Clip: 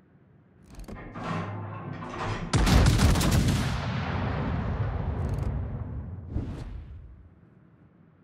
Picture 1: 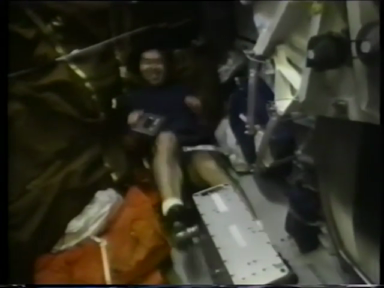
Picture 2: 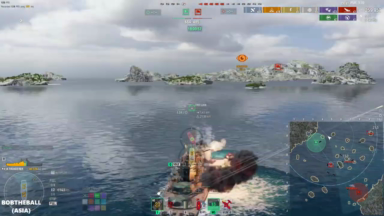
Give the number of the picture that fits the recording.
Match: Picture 2